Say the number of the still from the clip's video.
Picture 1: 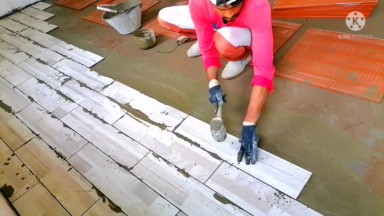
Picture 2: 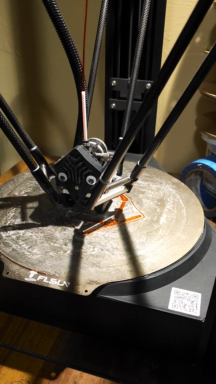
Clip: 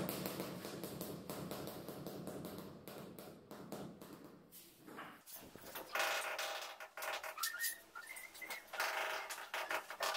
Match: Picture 1